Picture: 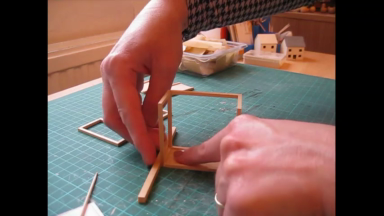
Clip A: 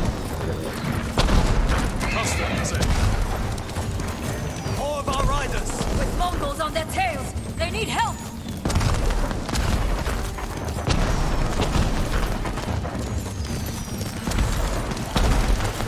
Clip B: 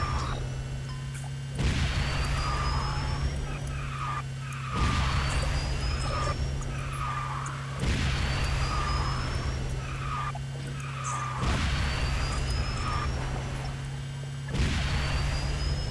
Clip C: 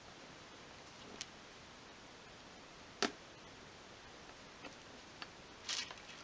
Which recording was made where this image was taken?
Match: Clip C